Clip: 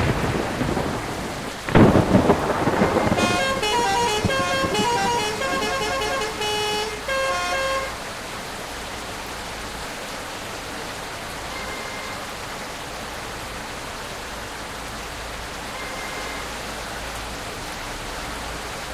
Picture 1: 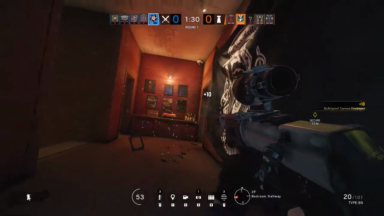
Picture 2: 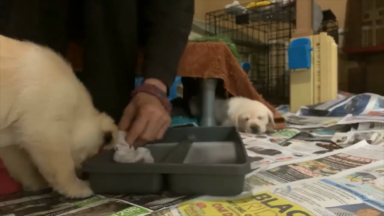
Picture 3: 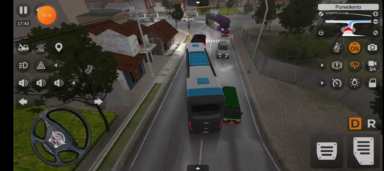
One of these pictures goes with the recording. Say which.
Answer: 3